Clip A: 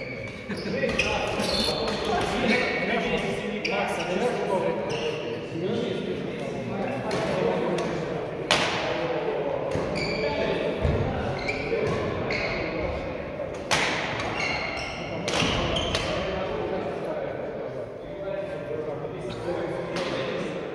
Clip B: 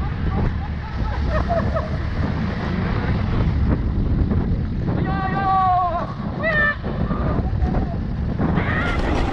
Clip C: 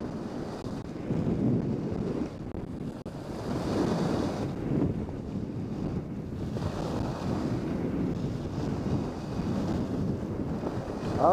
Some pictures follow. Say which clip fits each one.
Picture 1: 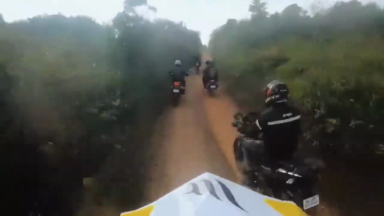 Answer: B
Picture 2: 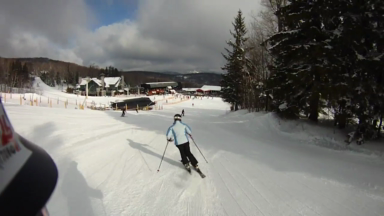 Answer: C